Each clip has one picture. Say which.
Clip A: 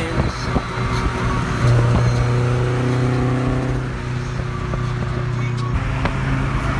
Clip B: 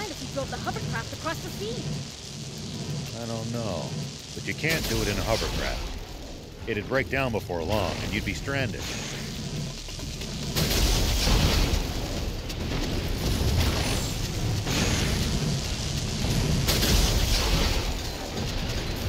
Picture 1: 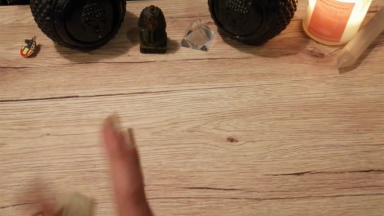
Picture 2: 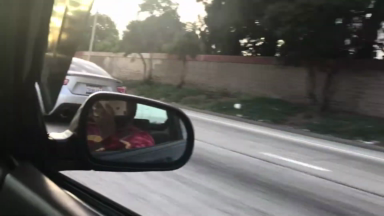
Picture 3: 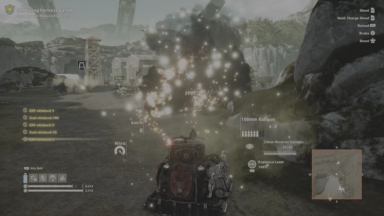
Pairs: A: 2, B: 3